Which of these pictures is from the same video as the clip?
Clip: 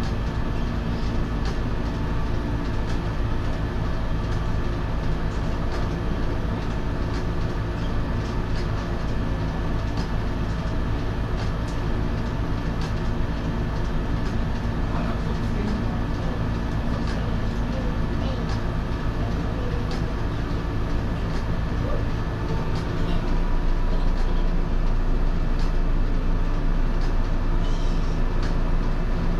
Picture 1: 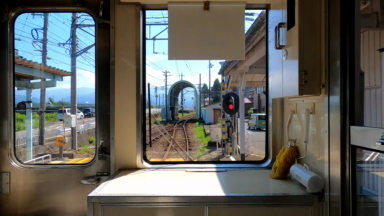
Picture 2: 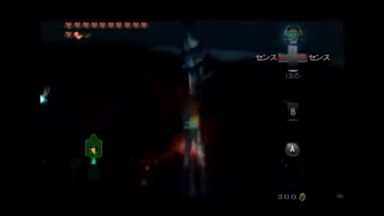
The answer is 1